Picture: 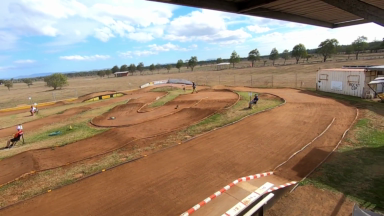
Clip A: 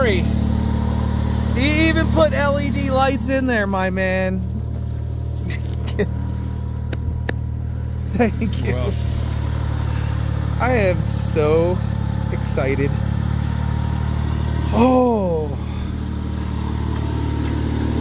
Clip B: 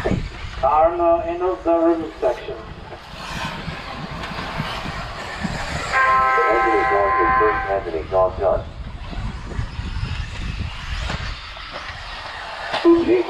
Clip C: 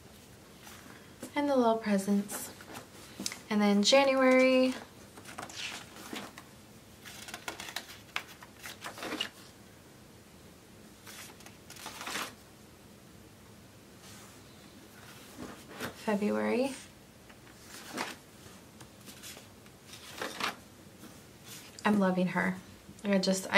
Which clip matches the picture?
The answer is B